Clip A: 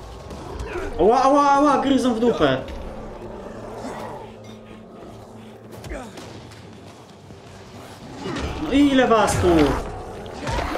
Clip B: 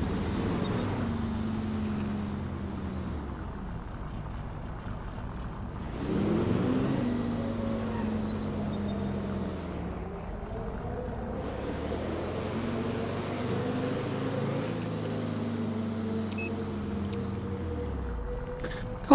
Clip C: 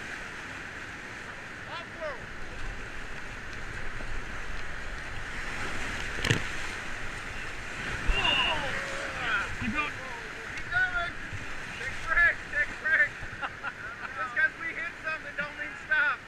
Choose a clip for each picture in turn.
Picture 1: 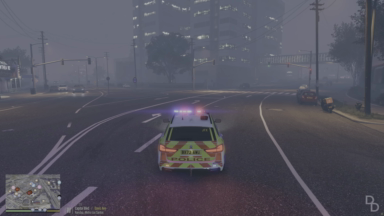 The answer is B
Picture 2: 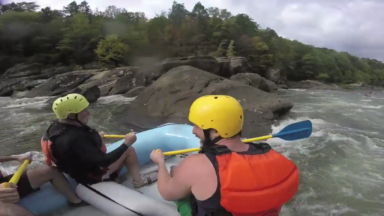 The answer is C